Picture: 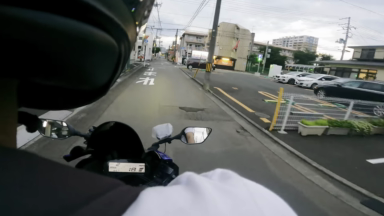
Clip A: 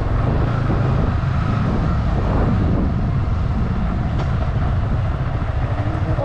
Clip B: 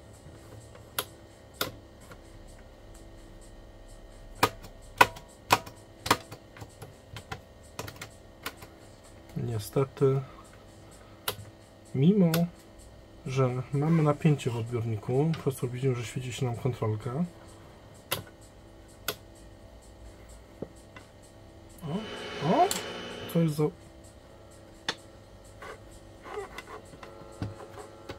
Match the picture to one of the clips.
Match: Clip A